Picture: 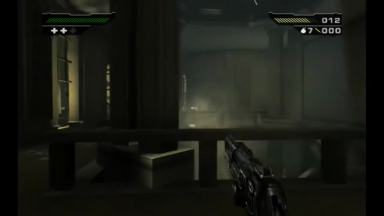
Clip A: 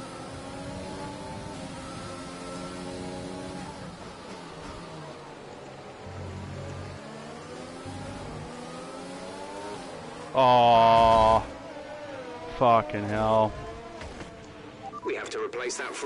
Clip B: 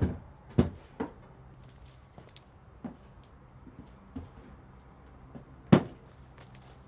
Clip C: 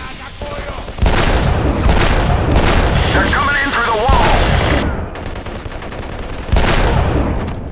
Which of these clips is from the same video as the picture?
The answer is C